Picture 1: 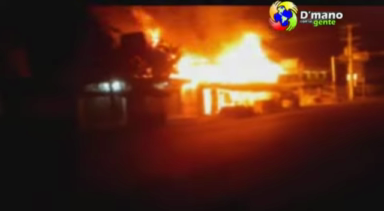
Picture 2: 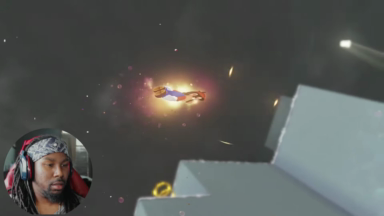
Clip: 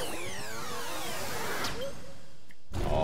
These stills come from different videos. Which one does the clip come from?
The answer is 2